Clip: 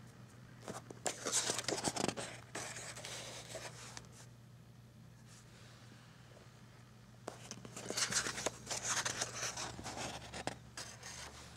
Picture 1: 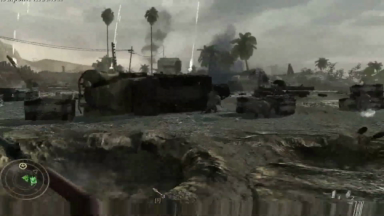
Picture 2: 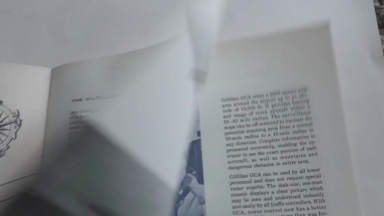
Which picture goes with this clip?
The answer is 2